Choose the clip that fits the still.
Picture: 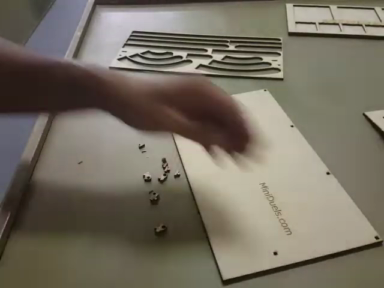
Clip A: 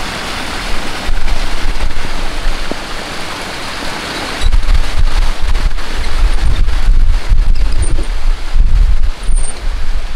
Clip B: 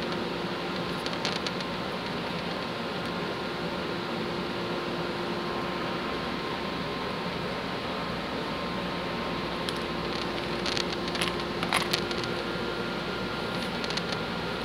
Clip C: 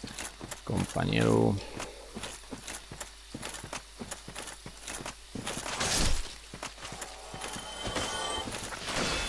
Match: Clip B